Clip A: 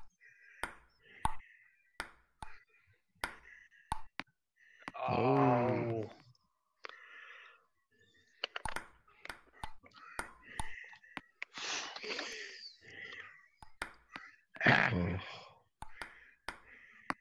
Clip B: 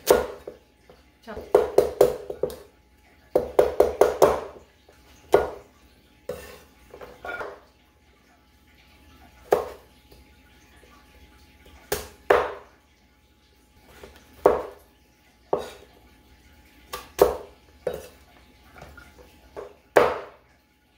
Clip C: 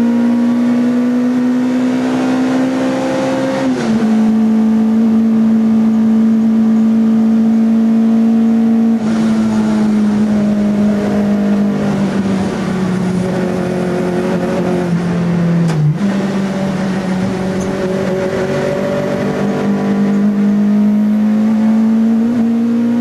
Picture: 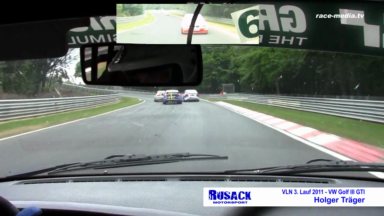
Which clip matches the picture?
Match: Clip C